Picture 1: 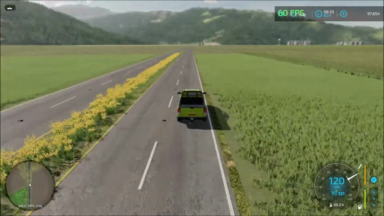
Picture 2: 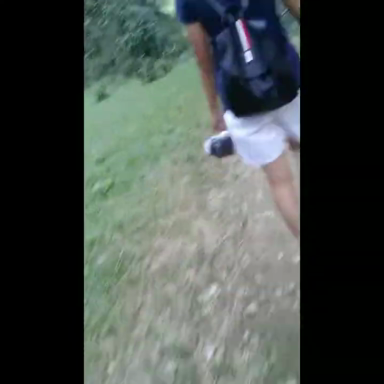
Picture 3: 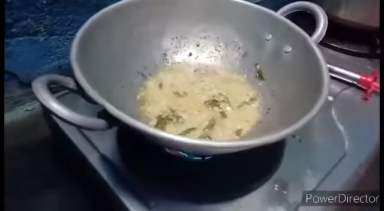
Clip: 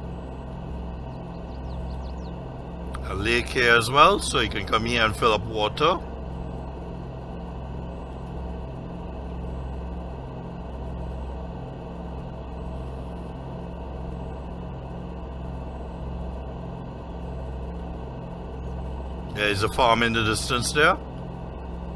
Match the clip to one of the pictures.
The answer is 1